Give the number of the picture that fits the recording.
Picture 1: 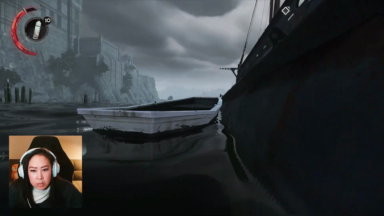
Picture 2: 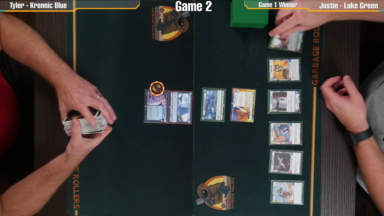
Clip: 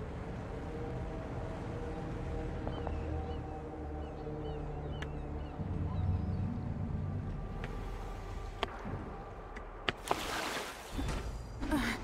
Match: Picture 1